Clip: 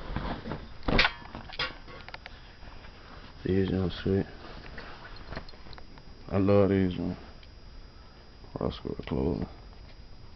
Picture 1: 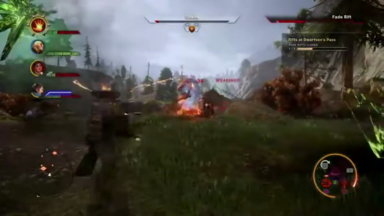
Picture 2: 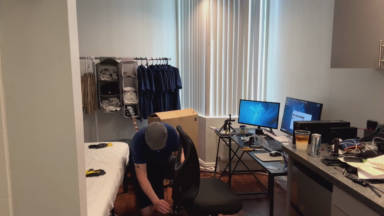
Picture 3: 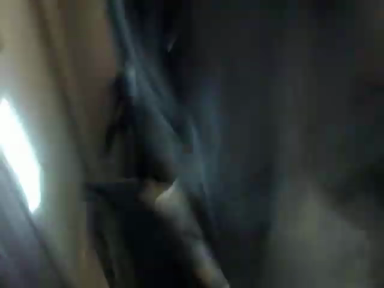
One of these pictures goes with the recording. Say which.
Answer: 3